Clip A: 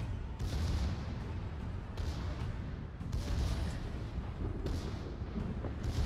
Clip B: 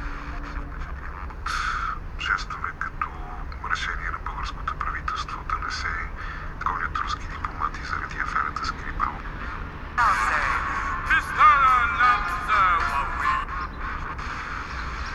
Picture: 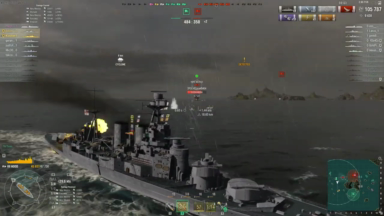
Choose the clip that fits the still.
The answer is A